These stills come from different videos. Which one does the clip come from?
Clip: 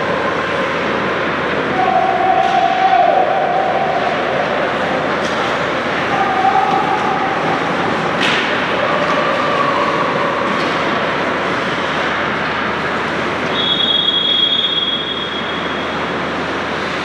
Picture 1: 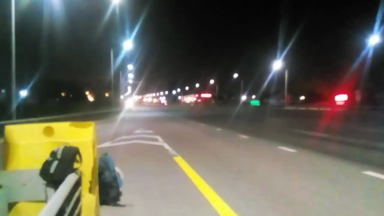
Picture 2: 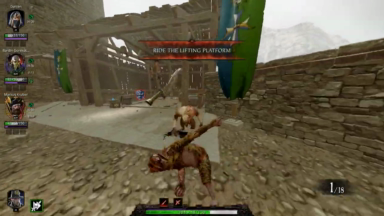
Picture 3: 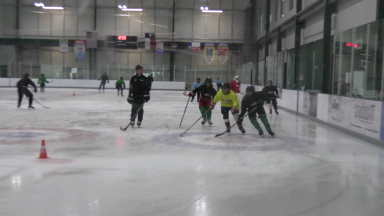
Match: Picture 3